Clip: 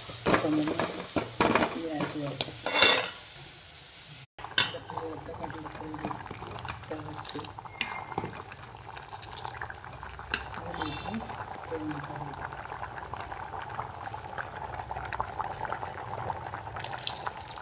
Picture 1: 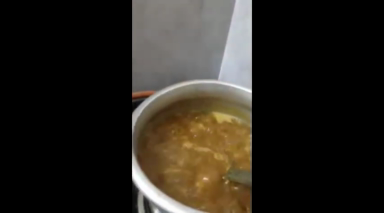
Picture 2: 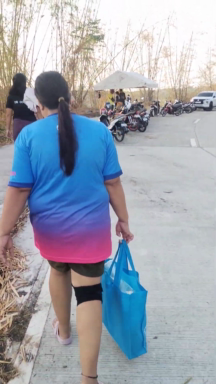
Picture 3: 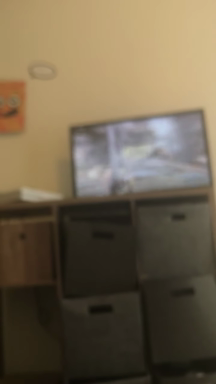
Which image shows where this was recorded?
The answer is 1